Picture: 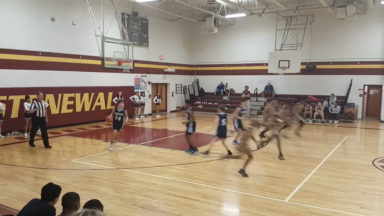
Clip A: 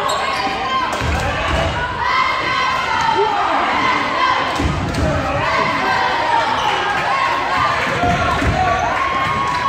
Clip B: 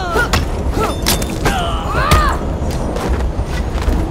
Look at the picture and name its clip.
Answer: A